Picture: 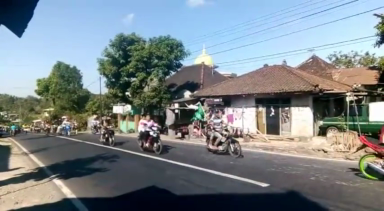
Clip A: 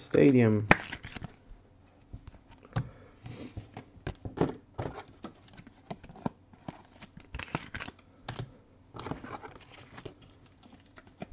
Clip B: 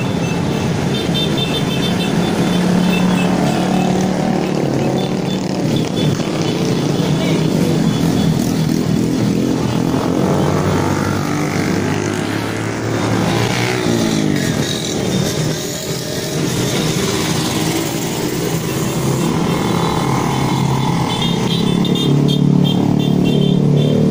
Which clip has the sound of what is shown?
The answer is B